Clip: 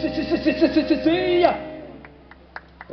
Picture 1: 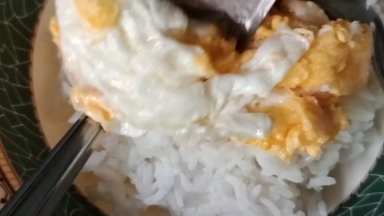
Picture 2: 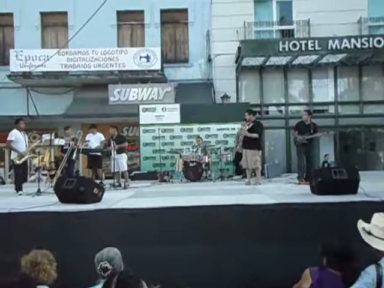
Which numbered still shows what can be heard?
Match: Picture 2